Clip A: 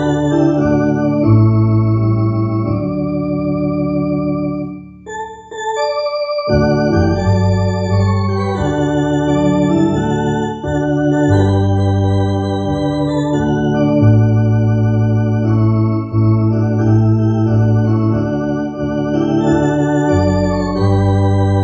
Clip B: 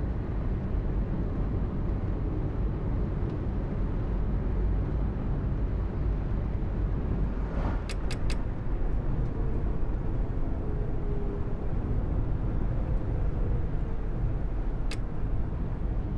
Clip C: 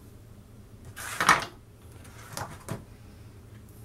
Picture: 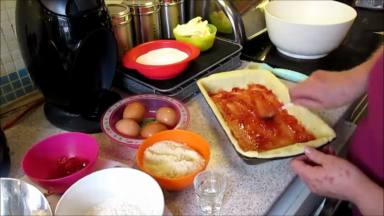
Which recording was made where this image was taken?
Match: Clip C